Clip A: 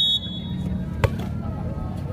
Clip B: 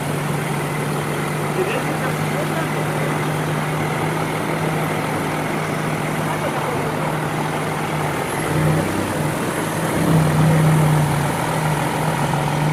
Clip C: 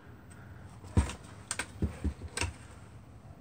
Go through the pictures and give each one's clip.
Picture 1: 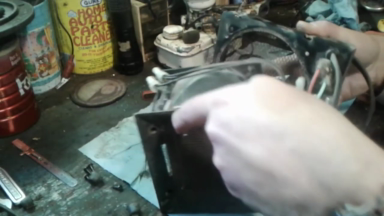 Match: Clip C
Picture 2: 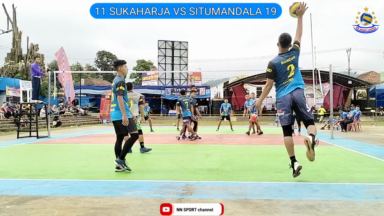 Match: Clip A